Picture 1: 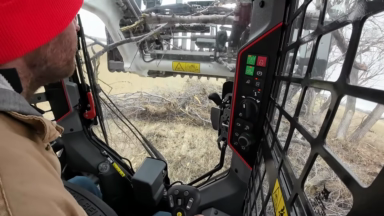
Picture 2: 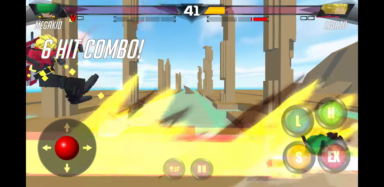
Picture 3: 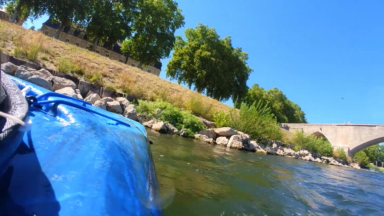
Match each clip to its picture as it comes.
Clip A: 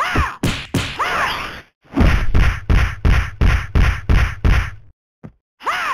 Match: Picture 2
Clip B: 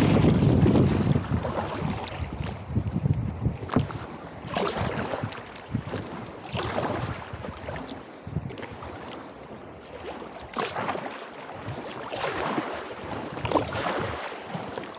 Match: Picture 3